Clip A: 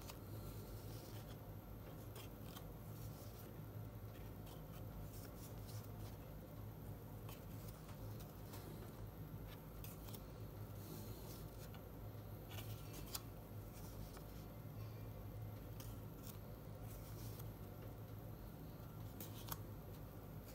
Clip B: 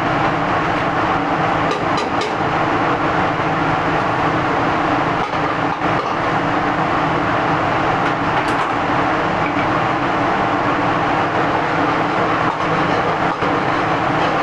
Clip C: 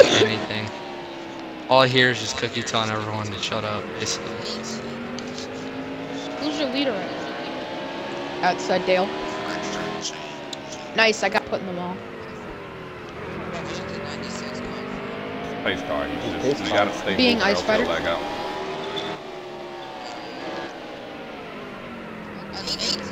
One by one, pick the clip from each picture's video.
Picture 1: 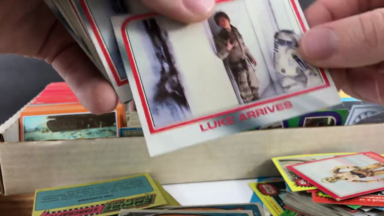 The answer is A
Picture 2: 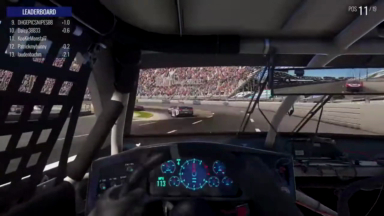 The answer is C